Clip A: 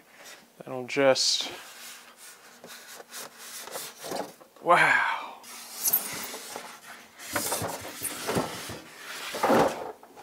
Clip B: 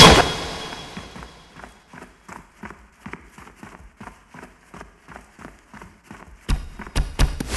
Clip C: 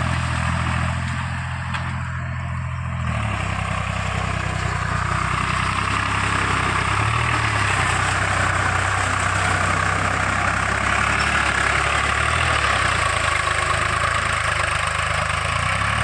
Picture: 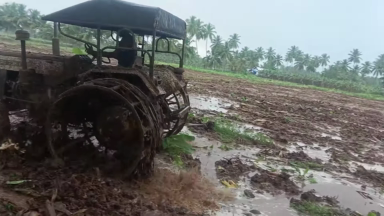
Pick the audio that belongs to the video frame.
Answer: C